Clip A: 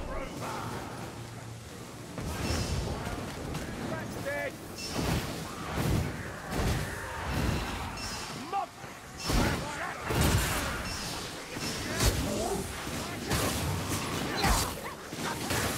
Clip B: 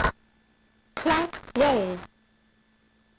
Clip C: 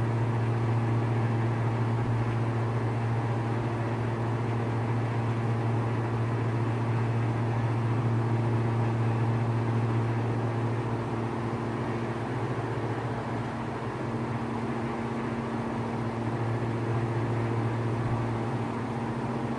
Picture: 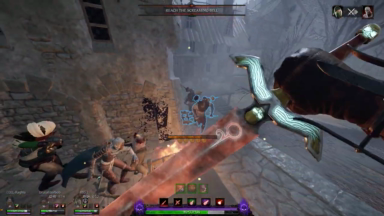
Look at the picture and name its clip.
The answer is A